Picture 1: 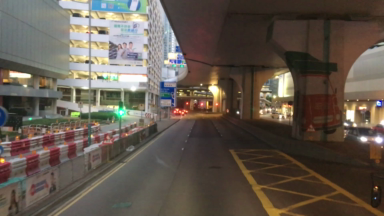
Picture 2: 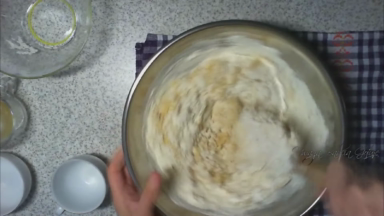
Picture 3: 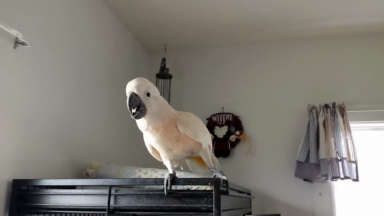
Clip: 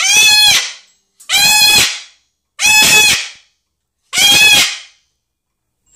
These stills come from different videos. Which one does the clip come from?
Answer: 3